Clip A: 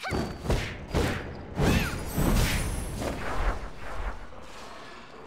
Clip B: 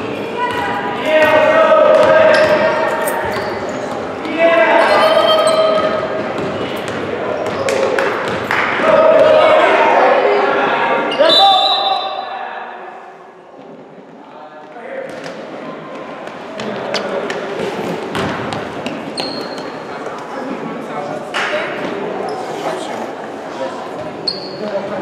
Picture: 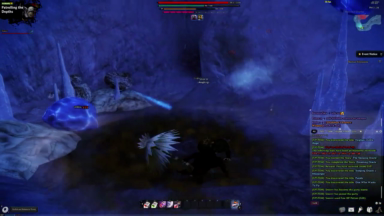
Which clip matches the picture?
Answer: A